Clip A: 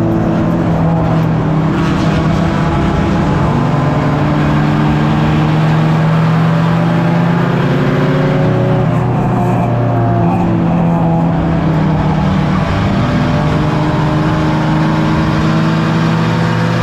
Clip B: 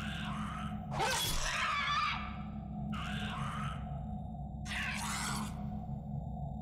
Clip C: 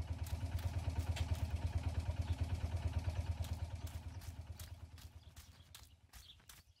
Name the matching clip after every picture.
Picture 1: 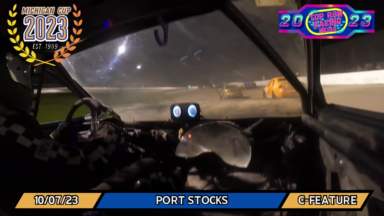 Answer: A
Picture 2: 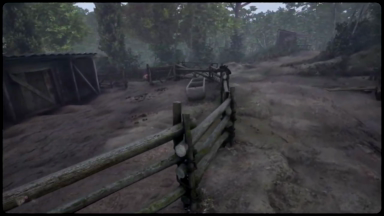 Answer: C